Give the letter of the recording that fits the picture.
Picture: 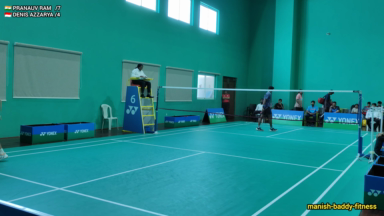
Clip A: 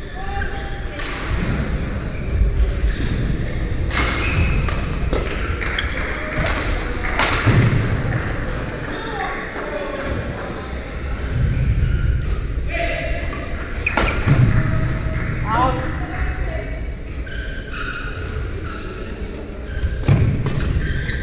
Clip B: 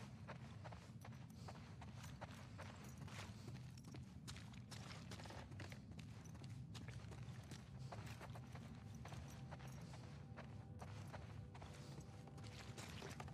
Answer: A